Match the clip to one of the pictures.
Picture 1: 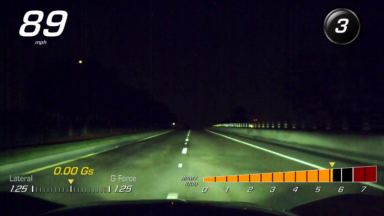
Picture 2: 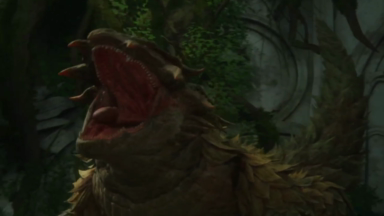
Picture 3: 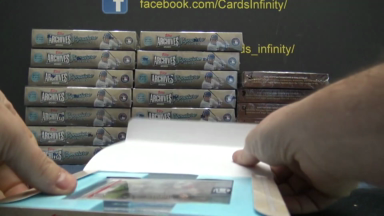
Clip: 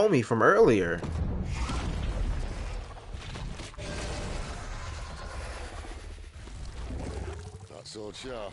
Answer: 2